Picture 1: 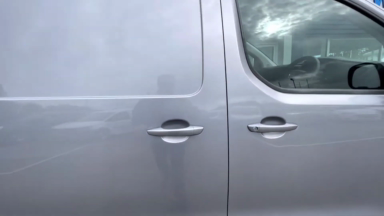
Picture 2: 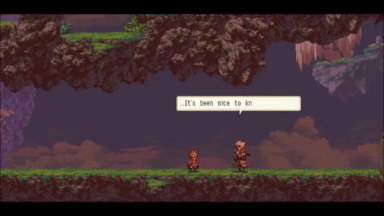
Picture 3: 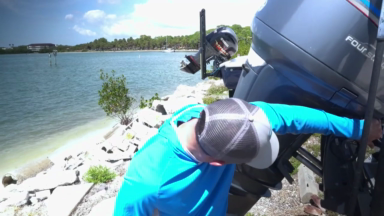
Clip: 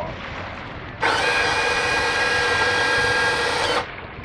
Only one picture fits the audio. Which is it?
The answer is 3